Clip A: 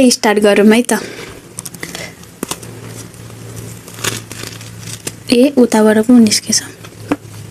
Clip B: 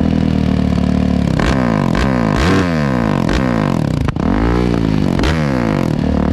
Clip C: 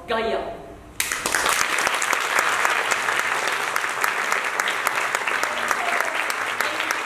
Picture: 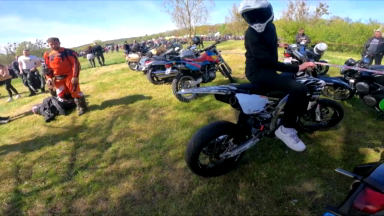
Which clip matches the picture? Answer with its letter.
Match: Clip B